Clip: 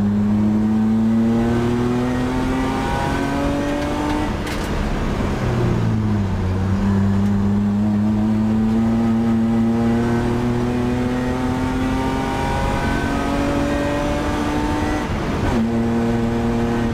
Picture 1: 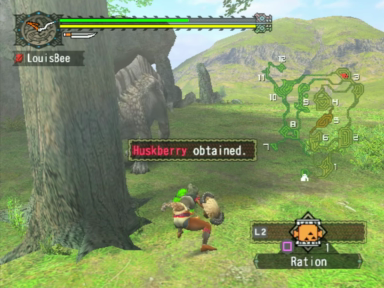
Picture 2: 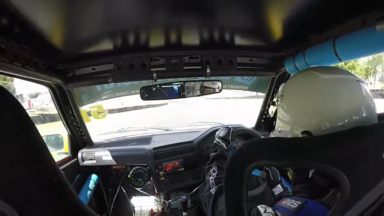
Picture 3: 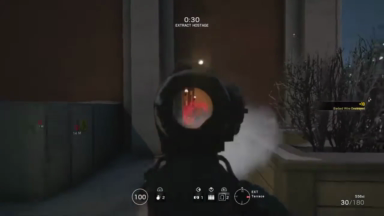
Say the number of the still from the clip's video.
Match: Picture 2